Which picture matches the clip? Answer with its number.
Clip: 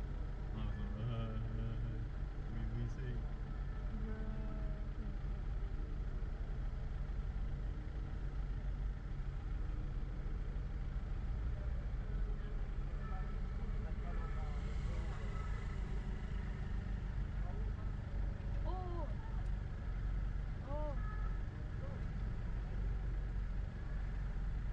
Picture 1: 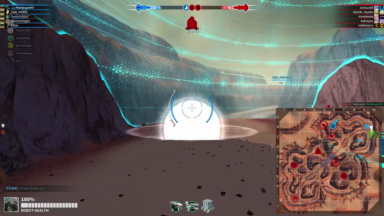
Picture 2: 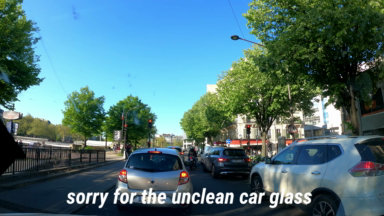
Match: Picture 2